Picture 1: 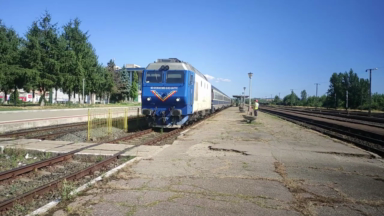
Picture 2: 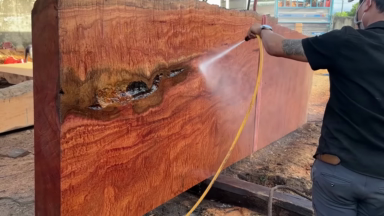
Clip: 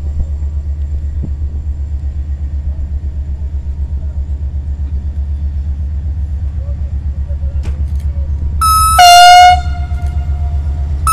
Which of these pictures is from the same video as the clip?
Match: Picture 1